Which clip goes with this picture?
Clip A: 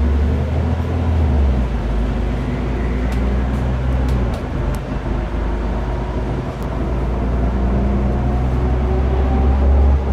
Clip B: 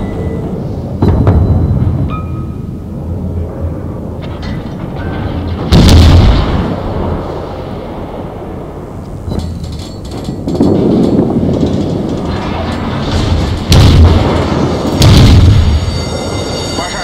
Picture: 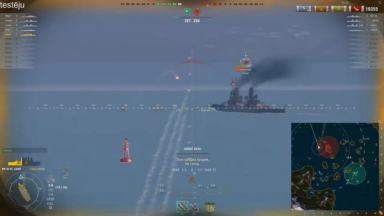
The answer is B